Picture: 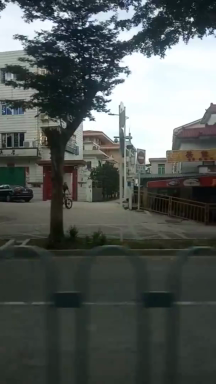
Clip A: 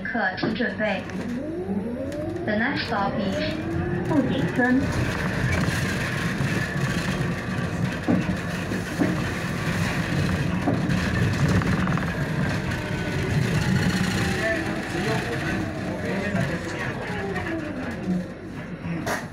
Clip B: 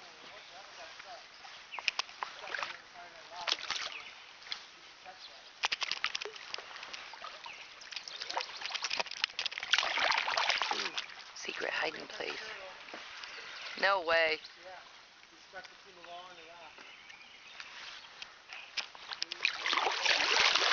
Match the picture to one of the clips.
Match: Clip A